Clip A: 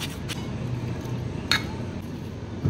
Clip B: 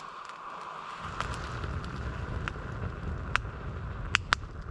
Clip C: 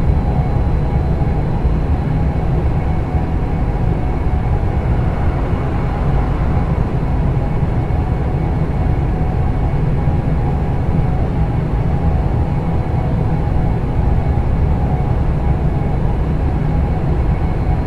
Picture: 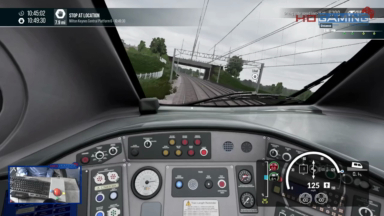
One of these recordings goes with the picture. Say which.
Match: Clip C